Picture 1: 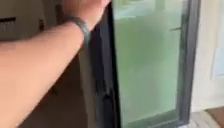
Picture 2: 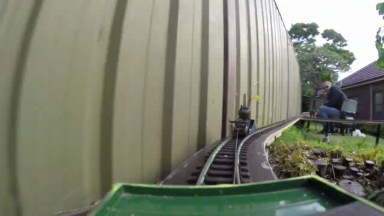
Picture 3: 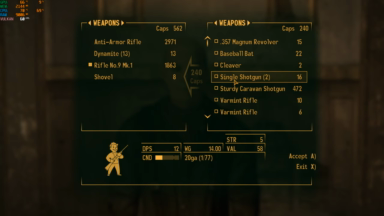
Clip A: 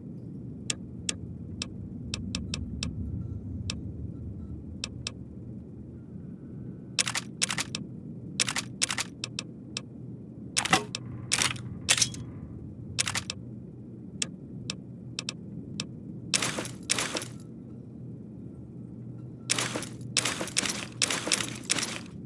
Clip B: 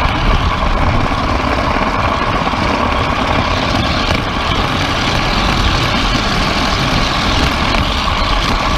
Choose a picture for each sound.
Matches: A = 3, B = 2